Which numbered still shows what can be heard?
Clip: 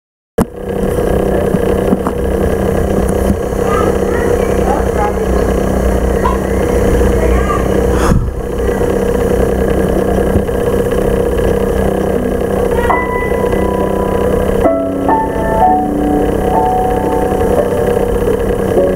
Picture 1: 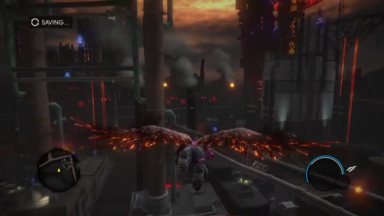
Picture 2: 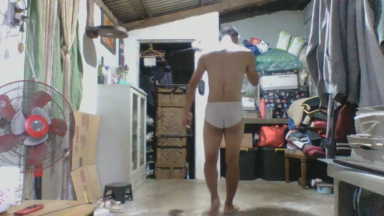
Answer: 2